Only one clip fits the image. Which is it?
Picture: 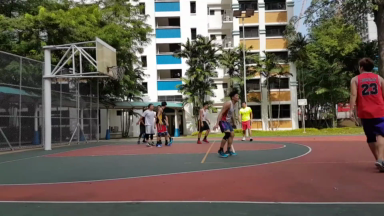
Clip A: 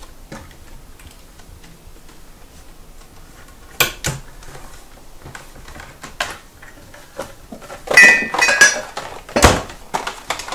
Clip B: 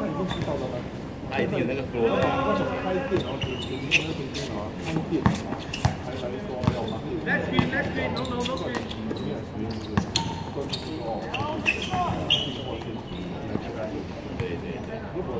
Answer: B